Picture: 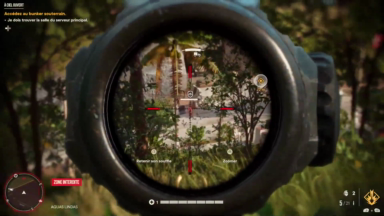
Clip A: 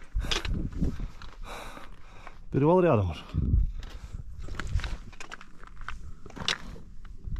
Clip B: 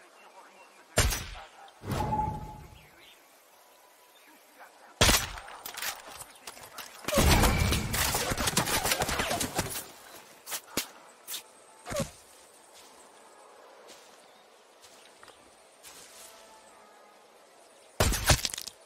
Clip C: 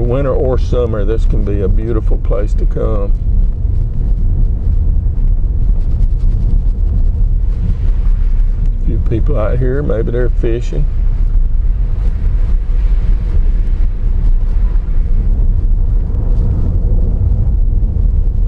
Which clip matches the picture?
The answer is B